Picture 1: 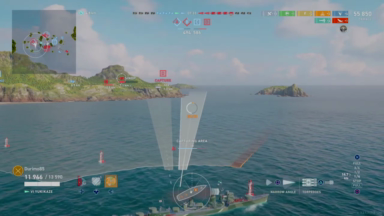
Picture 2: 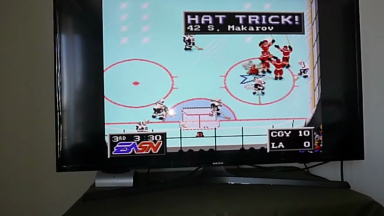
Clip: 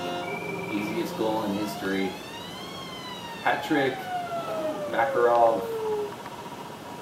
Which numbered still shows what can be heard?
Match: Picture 2